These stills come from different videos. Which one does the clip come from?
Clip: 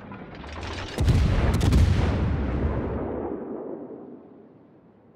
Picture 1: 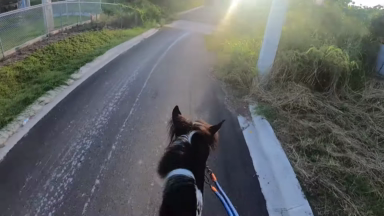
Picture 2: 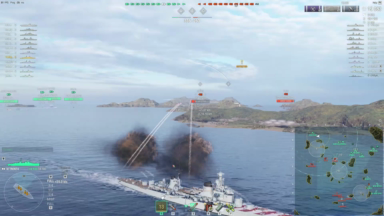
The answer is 2